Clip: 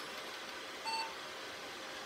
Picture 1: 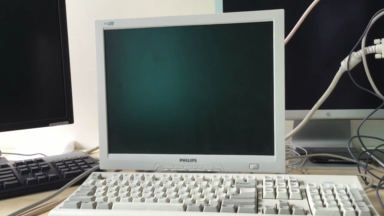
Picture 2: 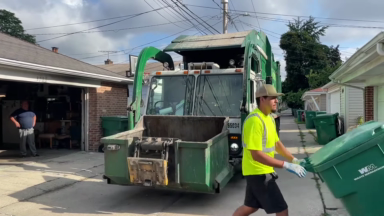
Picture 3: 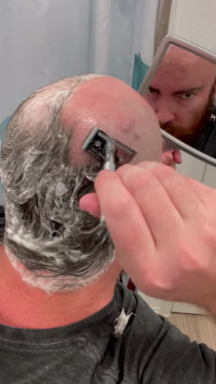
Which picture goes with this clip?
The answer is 1